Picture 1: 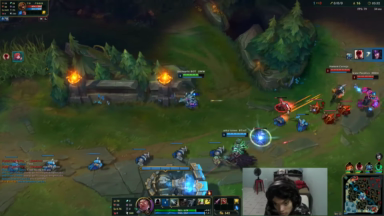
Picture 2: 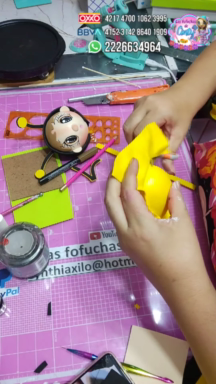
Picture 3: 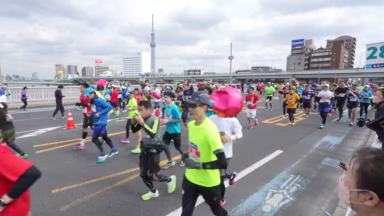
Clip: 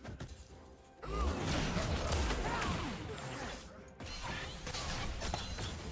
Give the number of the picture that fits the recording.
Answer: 1